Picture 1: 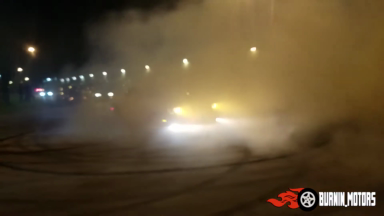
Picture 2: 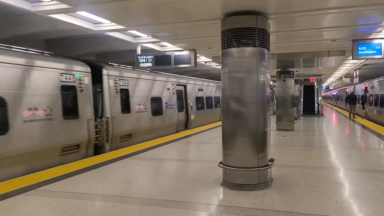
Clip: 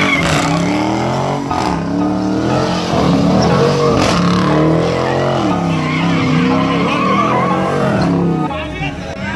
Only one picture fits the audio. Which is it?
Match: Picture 1